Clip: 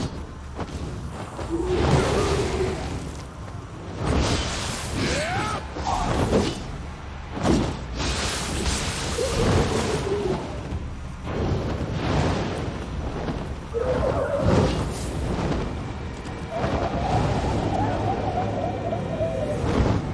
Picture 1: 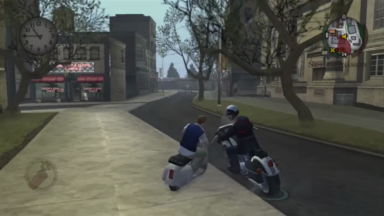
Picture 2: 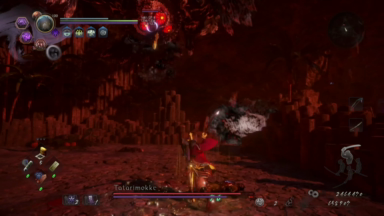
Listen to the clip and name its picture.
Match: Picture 2